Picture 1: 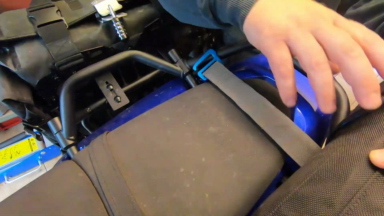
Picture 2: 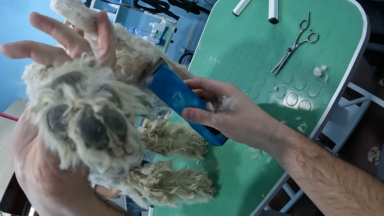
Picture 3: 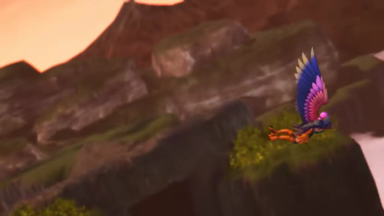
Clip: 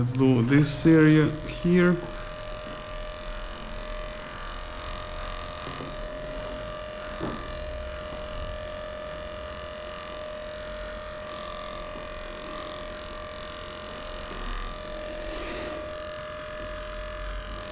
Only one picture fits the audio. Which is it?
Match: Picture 2